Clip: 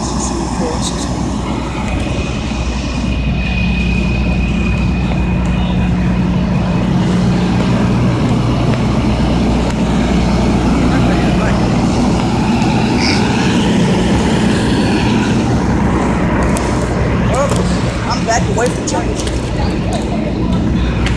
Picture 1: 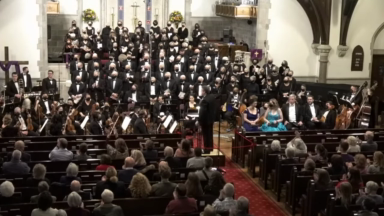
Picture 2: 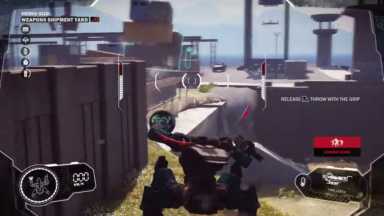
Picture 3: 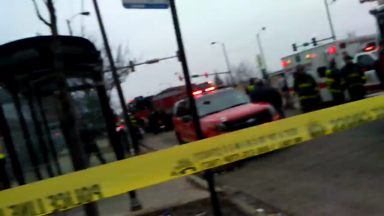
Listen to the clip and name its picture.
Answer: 3